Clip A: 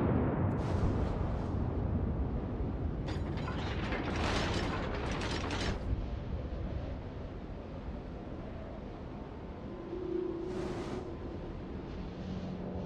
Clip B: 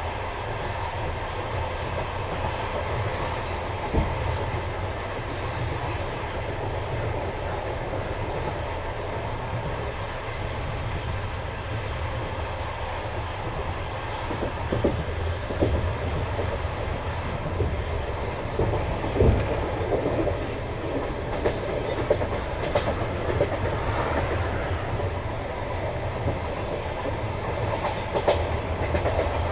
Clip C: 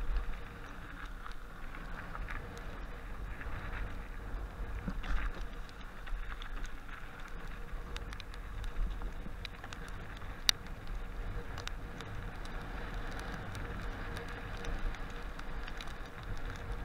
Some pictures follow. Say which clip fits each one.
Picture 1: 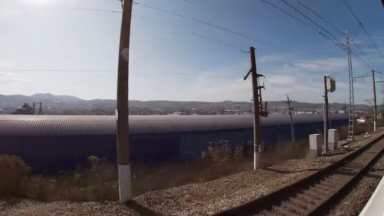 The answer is B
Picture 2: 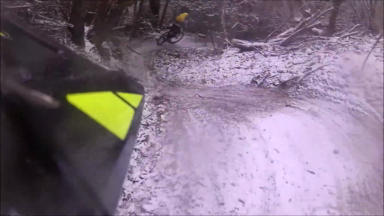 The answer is C